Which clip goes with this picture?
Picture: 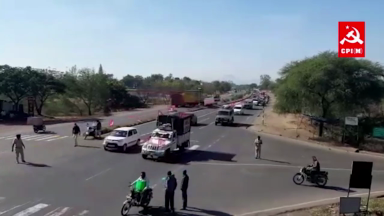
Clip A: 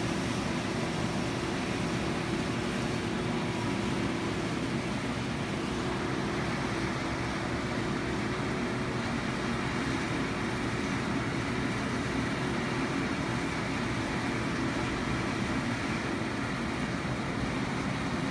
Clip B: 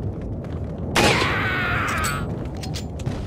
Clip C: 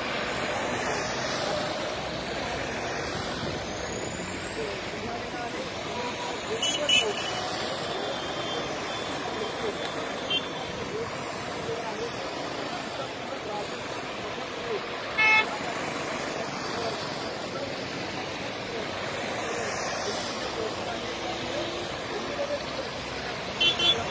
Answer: C